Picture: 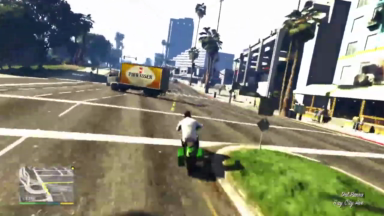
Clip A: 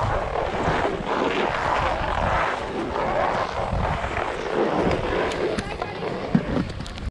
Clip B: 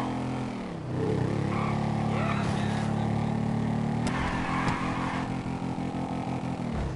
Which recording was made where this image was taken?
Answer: B